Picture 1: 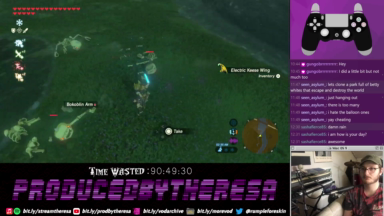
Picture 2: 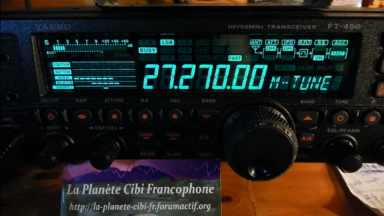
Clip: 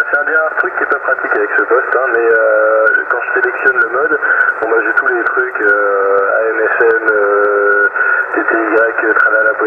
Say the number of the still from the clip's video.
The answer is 2